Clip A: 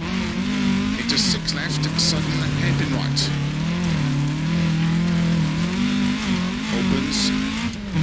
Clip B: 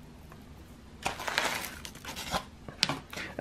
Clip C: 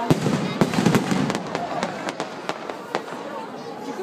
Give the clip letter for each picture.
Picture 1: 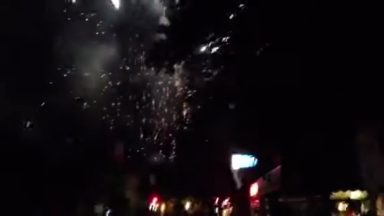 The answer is C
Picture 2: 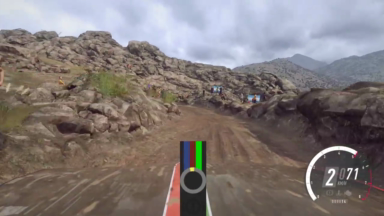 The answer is A